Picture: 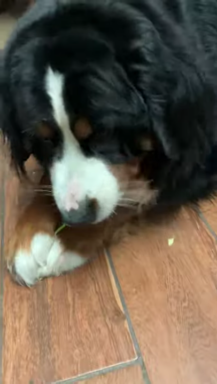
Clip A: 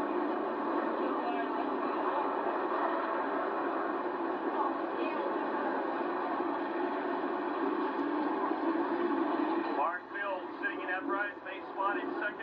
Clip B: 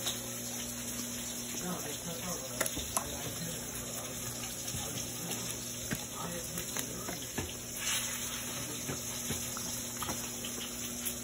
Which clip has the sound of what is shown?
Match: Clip B